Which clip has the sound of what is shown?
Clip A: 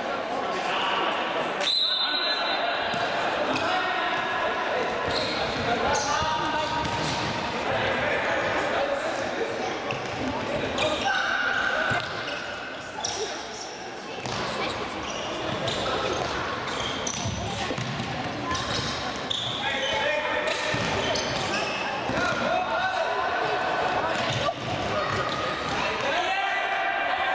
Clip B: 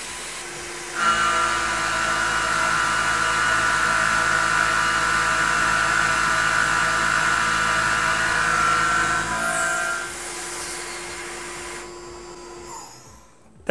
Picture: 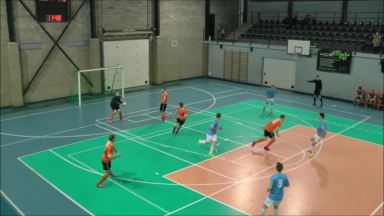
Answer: A